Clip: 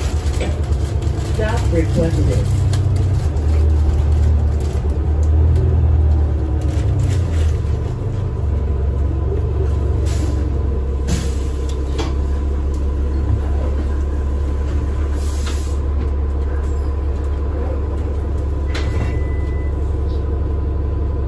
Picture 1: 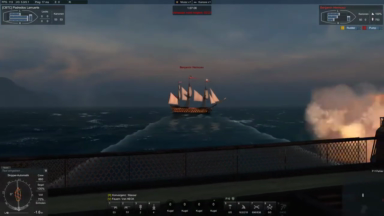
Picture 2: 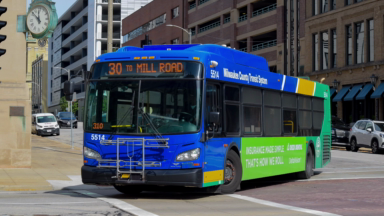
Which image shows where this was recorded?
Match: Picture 2